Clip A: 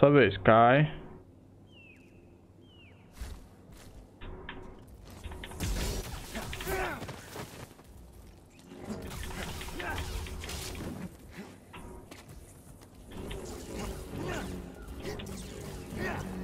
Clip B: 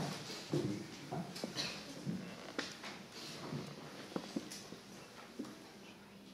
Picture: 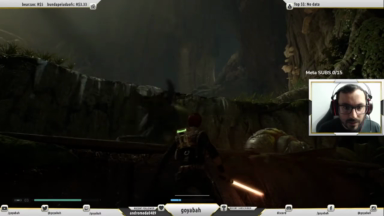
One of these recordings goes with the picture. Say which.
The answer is A